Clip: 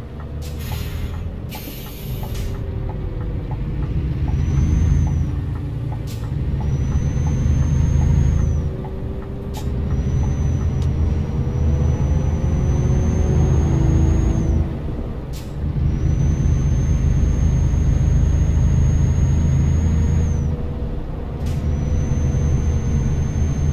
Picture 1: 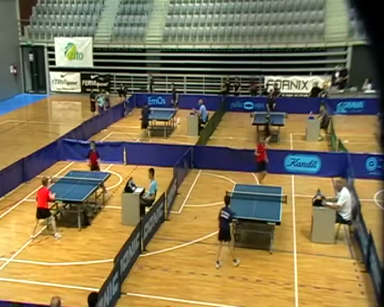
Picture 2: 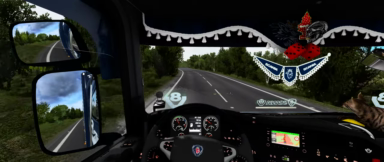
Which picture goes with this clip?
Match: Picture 2